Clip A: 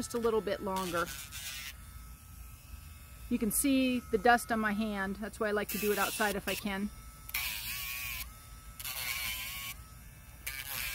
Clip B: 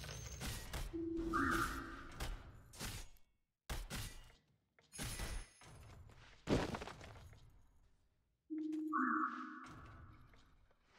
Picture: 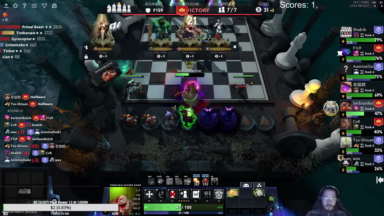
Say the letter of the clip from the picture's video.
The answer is B